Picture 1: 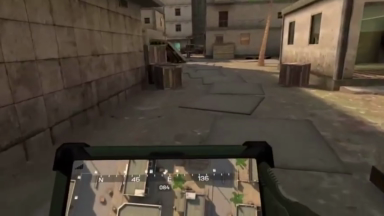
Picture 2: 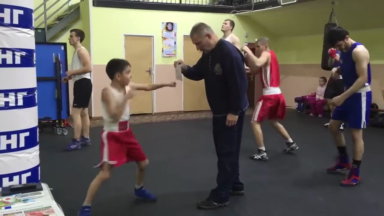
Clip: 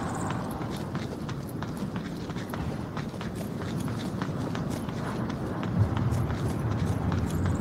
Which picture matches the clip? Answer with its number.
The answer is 1